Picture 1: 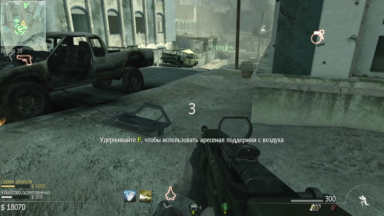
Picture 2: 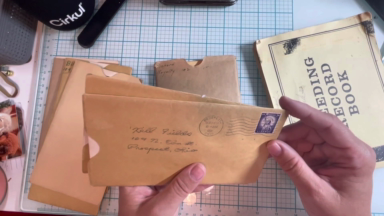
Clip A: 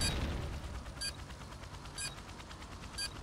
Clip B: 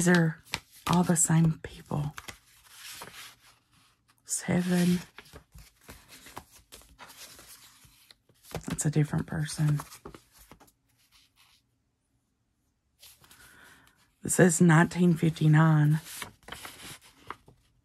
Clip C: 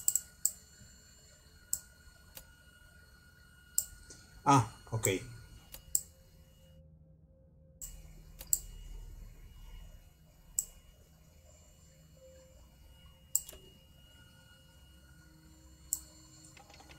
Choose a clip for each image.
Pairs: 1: A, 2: B